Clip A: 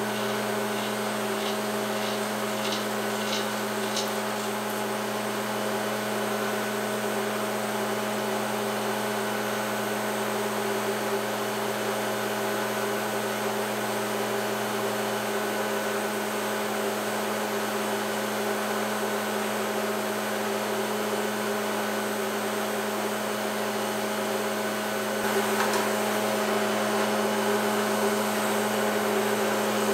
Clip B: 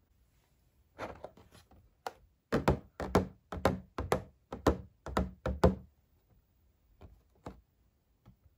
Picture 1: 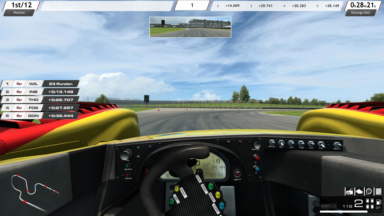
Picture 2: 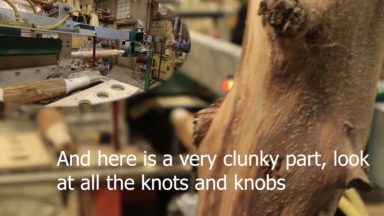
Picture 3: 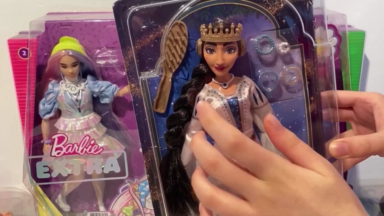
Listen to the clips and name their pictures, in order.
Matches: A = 2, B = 3